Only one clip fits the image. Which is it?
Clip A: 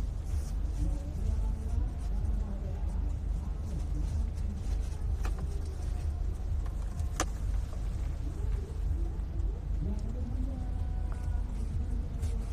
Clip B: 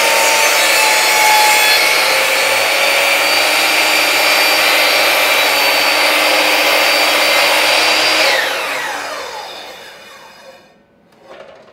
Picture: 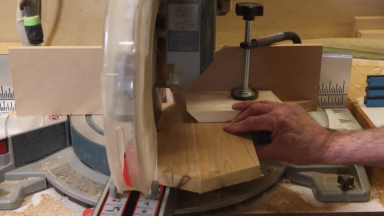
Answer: B